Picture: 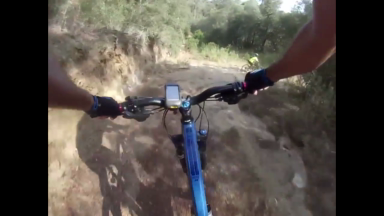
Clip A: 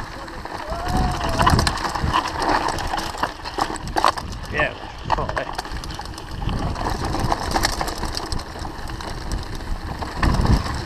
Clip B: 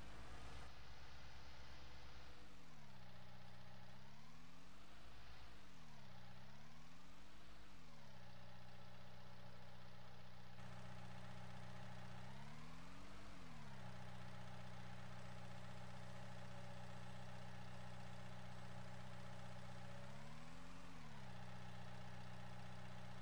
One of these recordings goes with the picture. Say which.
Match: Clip A